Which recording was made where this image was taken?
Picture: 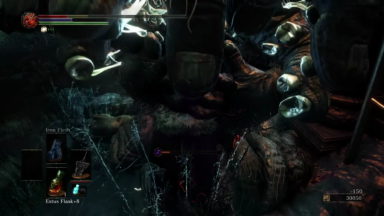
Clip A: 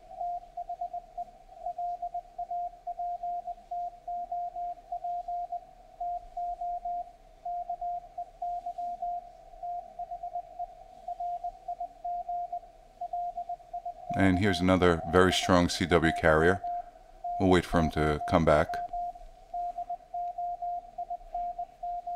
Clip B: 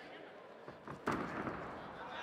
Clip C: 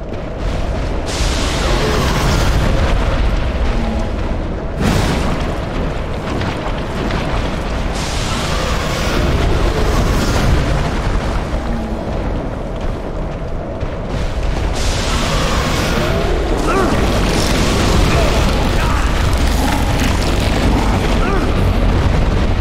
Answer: C